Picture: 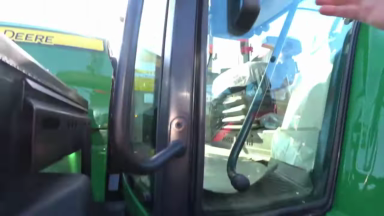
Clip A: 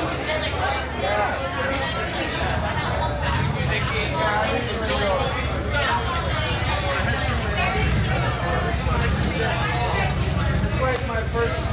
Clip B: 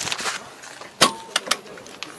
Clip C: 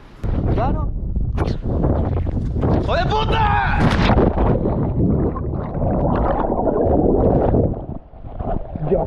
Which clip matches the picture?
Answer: B